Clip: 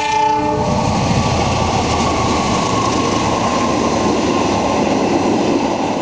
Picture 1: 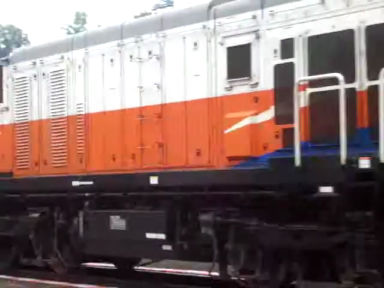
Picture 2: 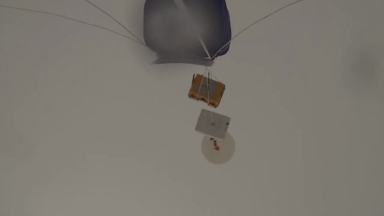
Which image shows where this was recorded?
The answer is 1